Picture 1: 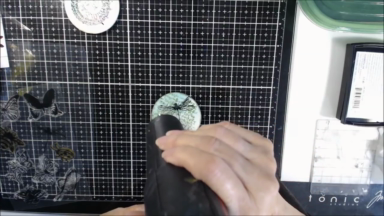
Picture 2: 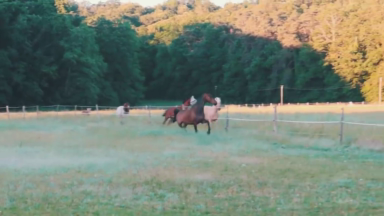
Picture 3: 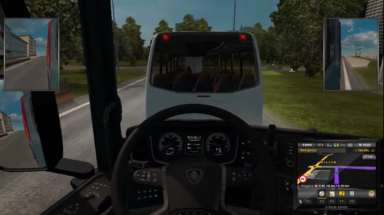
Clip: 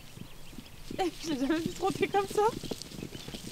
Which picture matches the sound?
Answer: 2